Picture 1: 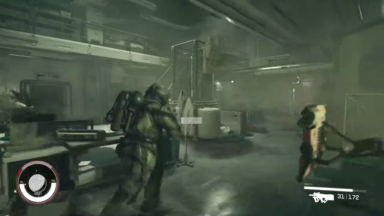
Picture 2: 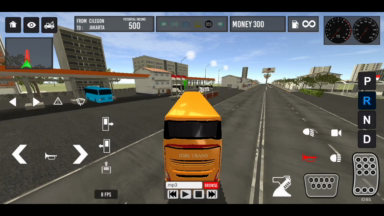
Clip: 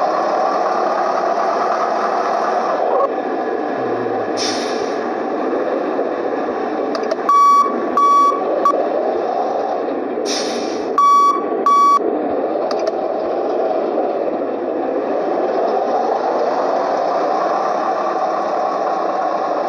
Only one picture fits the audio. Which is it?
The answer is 2